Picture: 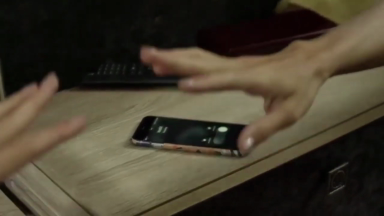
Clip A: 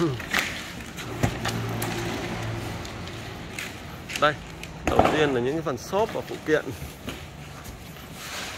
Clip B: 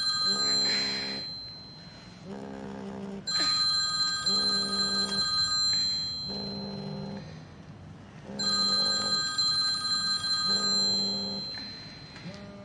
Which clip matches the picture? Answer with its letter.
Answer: B